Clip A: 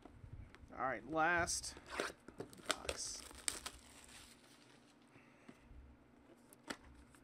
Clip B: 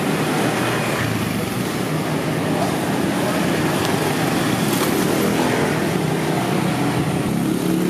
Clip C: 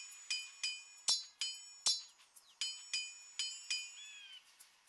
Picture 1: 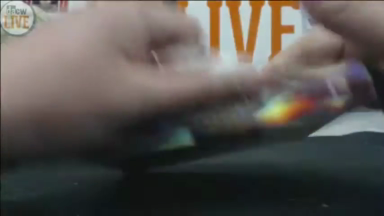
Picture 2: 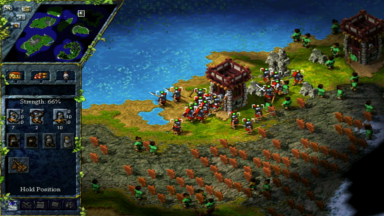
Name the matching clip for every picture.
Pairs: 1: A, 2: C